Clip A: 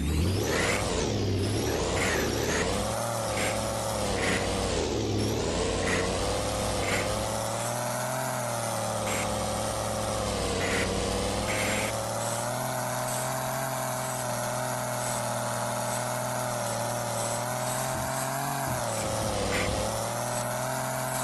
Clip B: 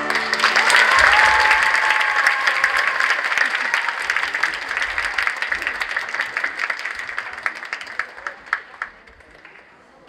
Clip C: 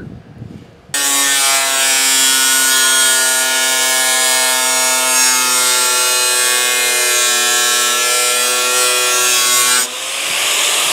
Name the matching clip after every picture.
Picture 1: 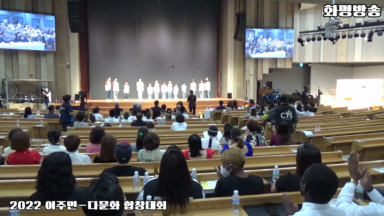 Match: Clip B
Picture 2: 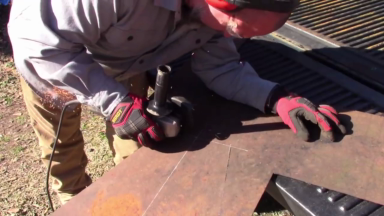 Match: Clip C